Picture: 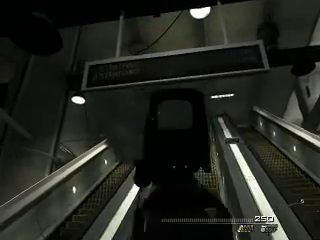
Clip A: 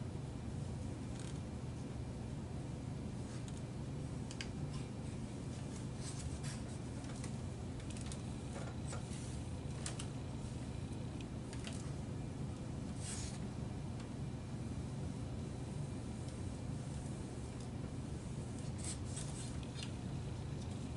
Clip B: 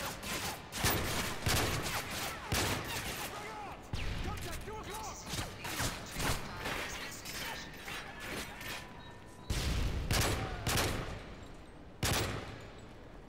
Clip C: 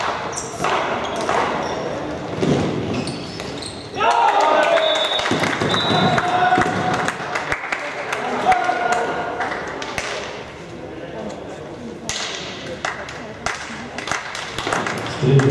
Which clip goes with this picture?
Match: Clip B